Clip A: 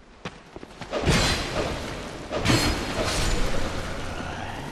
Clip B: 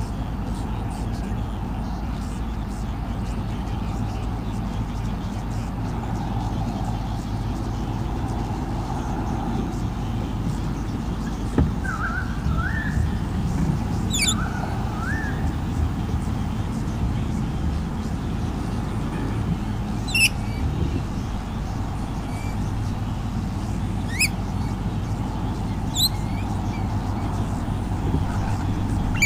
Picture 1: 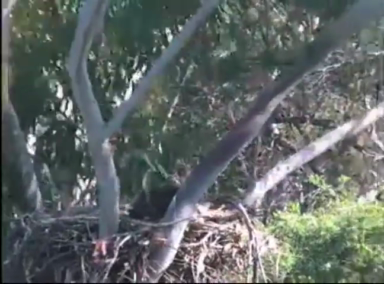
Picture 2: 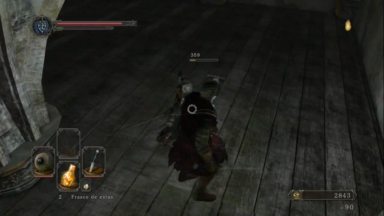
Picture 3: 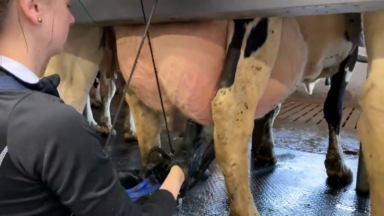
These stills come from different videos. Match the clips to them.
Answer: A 2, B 1